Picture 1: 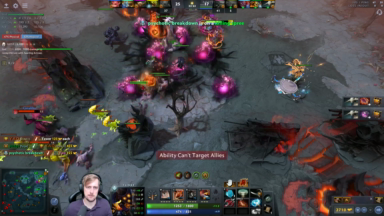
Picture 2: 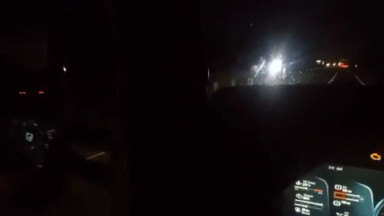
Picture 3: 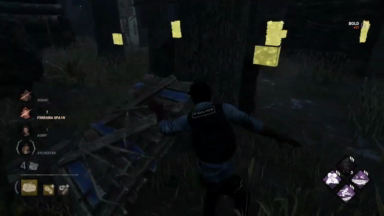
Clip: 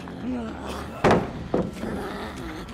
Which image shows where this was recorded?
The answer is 3